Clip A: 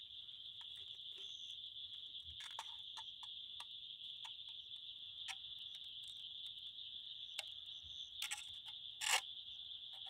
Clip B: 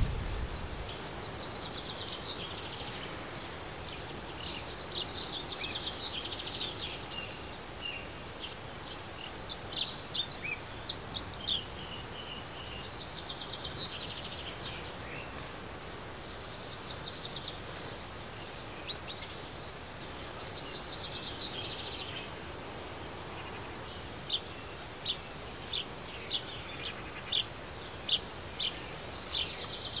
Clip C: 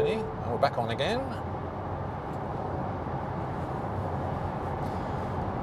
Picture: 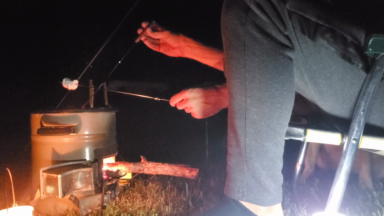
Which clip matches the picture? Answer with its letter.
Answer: A